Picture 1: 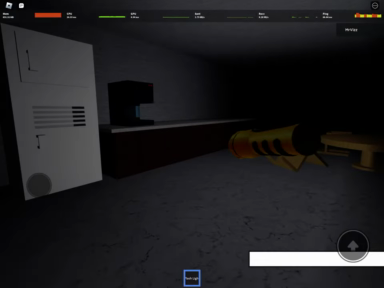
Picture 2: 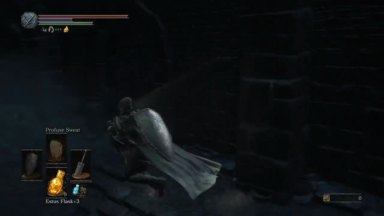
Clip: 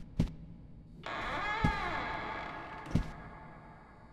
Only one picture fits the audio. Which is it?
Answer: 1